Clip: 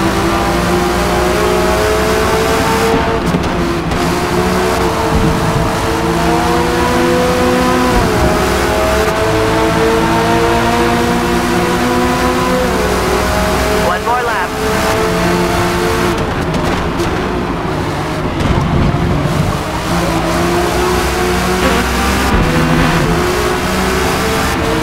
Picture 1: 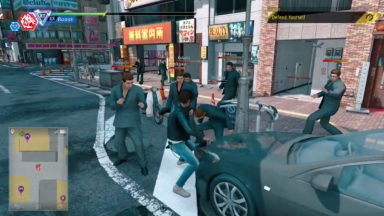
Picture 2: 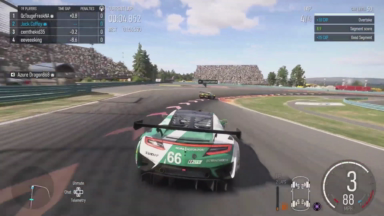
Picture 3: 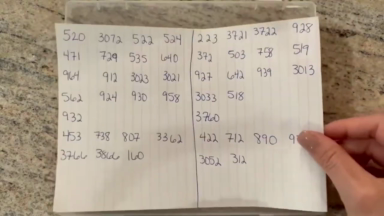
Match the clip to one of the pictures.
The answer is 2